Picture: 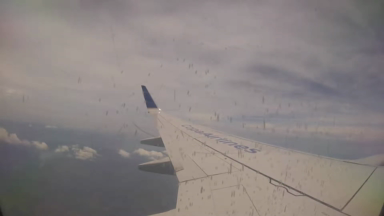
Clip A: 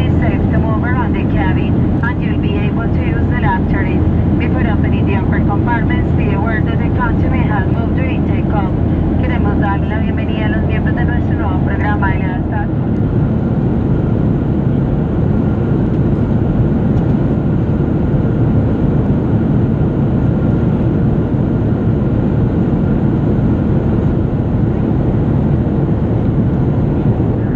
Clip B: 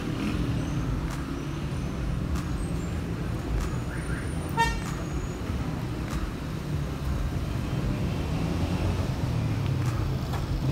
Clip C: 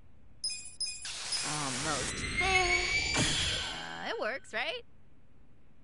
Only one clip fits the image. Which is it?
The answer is A